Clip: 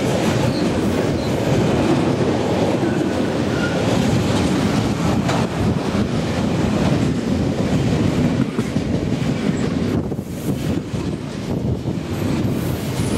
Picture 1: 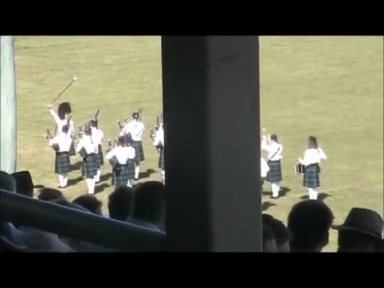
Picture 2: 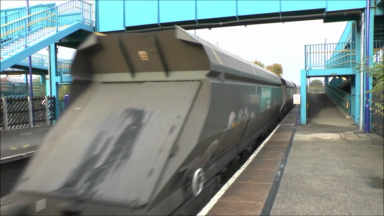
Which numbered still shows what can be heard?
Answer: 2